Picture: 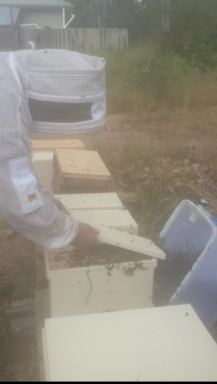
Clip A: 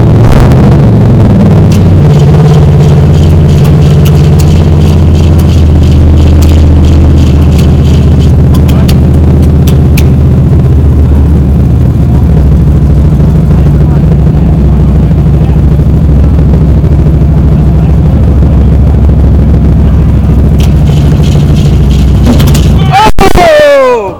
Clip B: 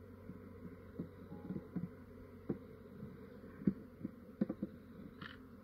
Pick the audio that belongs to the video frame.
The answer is B